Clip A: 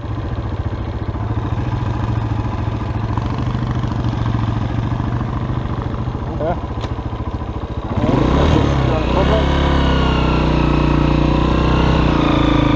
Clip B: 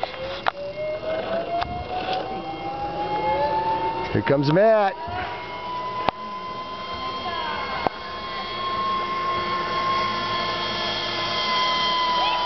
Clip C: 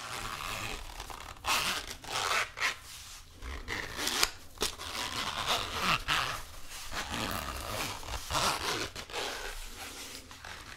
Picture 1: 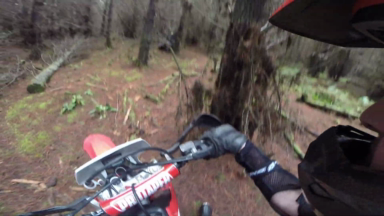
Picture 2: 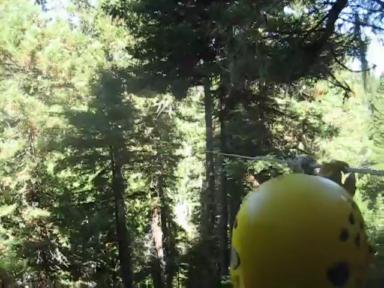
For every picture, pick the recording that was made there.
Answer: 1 A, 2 B